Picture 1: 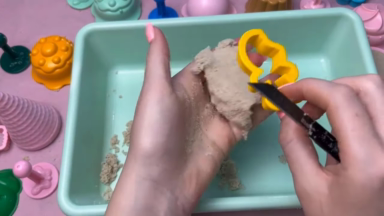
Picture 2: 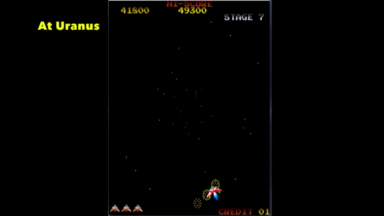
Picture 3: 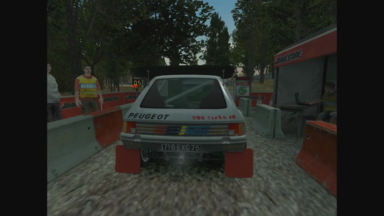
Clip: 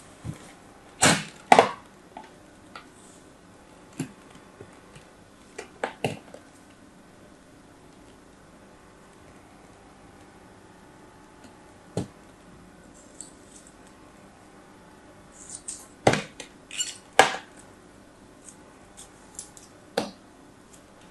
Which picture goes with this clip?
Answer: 1